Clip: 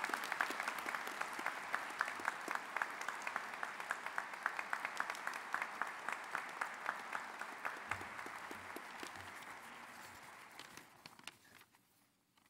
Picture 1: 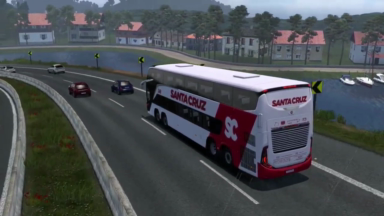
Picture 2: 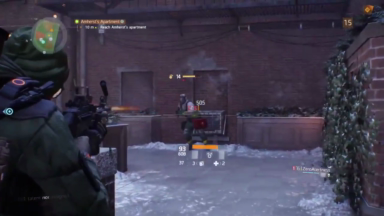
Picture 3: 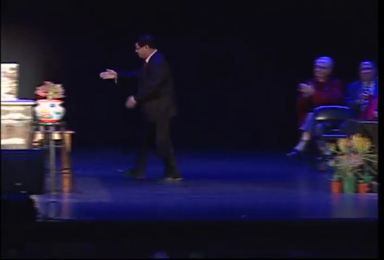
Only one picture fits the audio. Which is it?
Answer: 3